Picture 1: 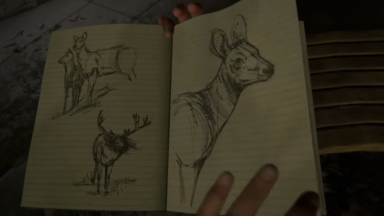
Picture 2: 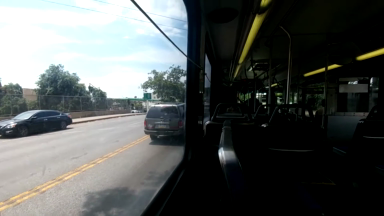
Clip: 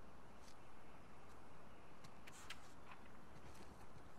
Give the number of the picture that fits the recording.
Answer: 1